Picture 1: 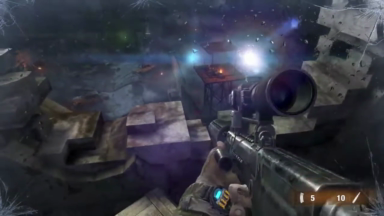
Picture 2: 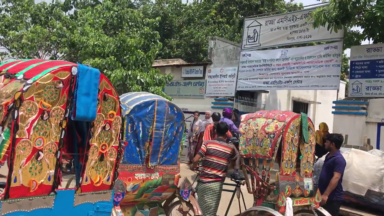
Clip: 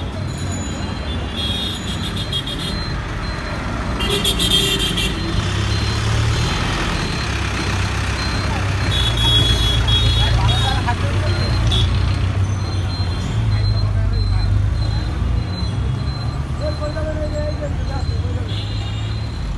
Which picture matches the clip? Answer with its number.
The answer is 2